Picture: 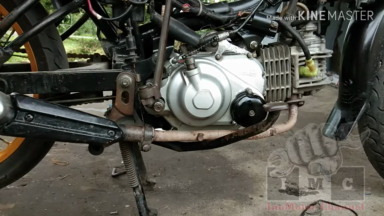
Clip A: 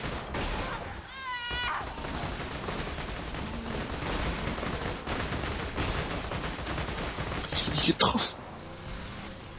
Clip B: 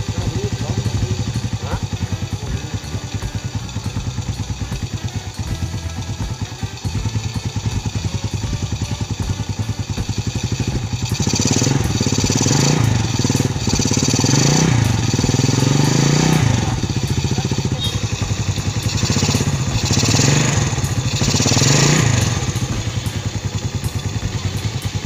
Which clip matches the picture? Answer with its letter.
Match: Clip B